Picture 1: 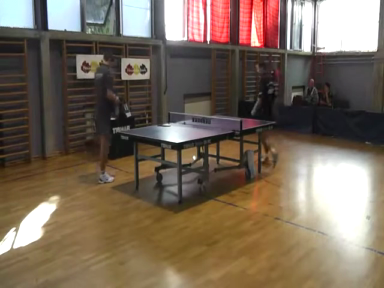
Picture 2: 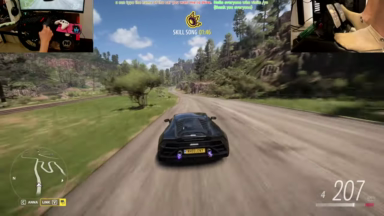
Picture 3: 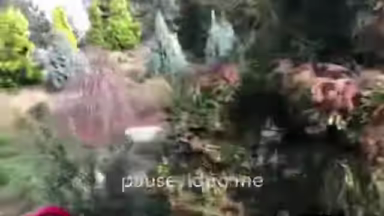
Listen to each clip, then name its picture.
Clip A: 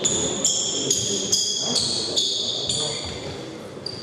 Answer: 1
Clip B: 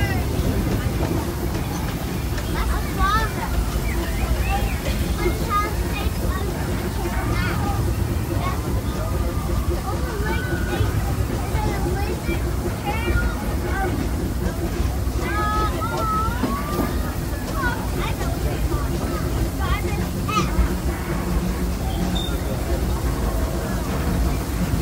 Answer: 3